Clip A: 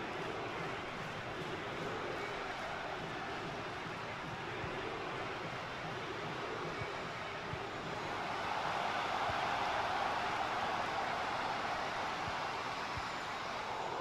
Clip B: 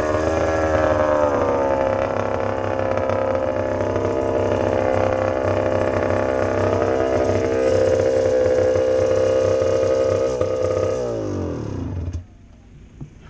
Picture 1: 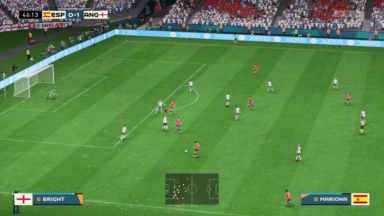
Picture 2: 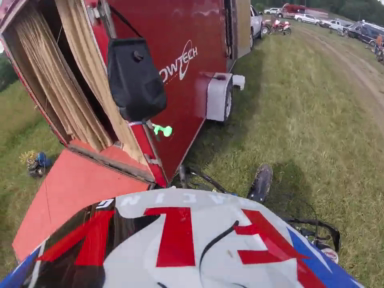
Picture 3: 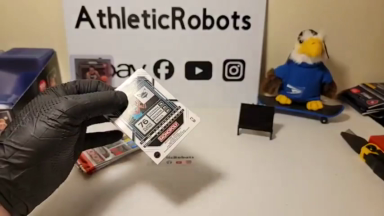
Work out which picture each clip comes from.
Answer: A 1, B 2